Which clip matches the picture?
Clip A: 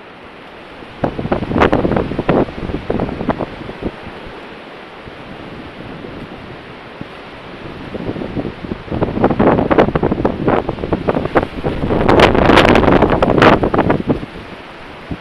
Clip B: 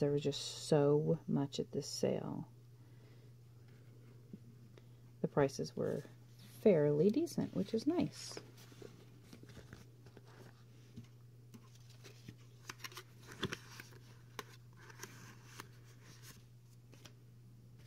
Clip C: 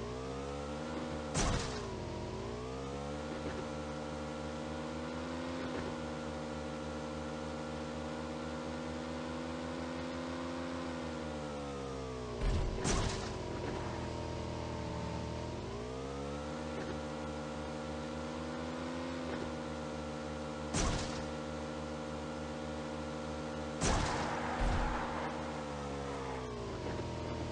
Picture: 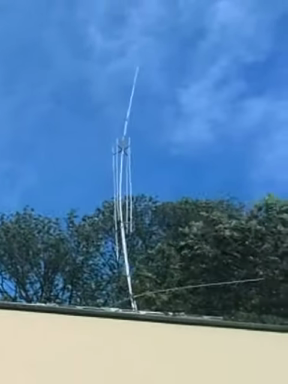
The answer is A